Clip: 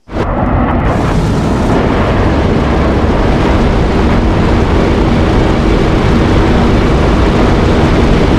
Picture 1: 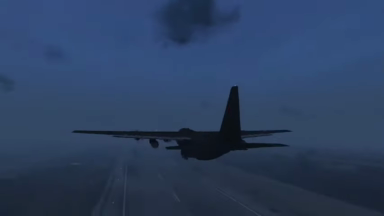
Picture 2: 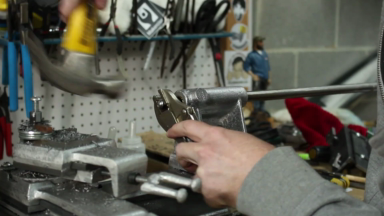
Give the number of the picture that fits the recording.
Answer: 1